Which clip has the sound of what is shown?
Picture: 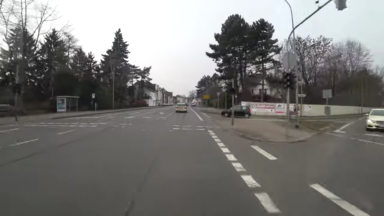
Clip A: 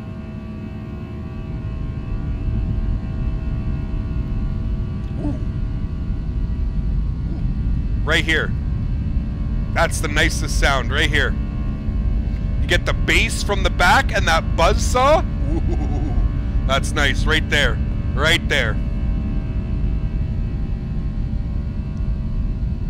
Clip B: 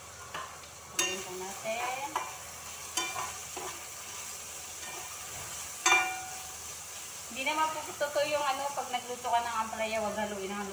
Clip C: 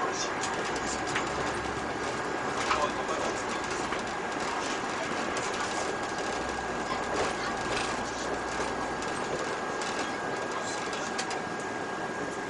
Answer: C